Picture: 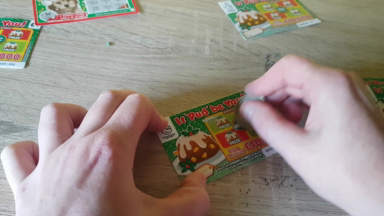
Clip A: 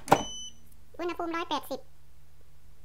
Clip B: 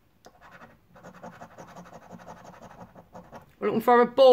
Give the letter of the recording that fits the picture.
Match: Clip B